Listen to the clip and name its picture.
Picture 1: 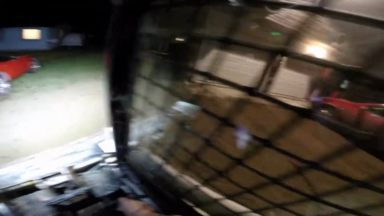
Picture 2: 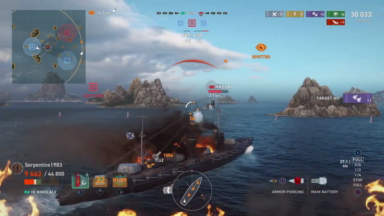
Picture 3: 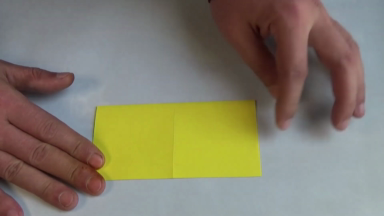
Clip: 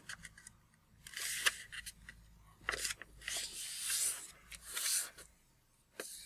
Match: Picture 3